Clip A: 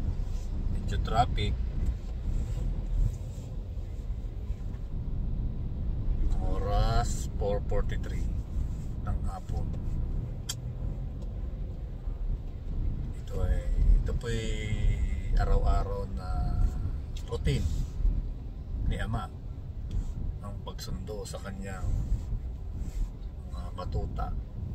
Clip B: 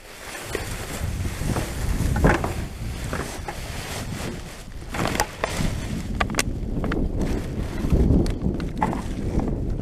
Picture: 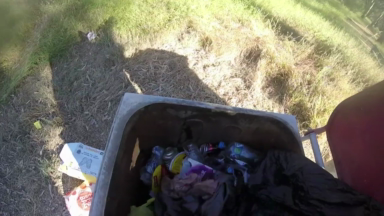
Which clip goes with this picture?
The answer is B